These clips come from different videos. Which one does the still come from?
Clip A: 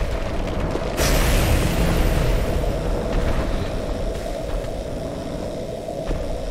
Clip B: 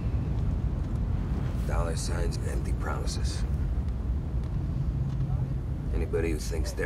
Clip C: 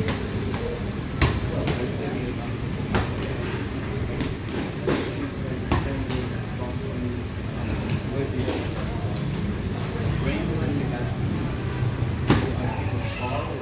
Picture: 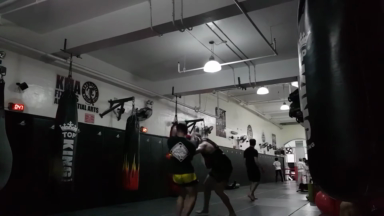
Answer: C